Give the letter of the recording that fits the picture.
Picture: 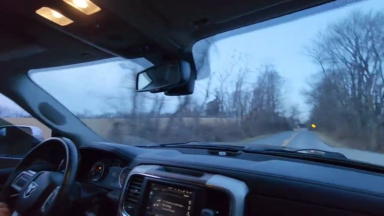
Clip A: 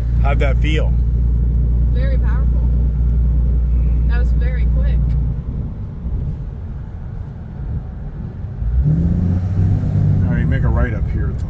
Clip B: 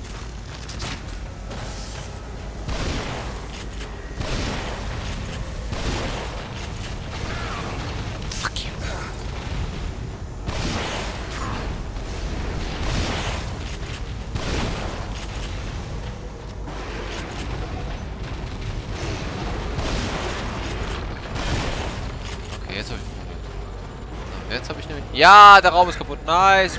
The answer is A